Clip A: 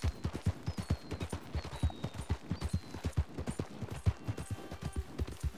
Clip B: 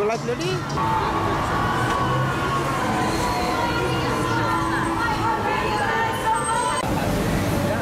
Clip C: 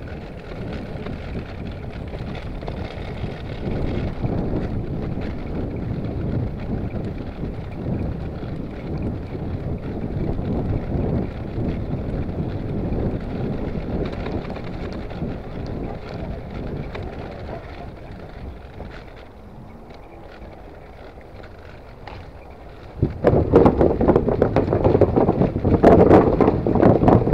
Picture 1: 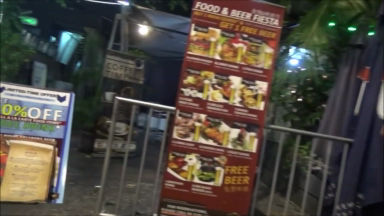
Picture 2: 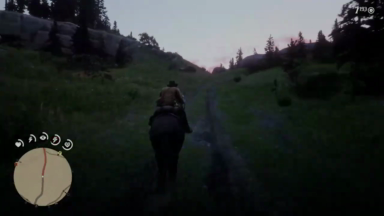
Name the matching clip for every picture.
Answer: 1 B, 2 A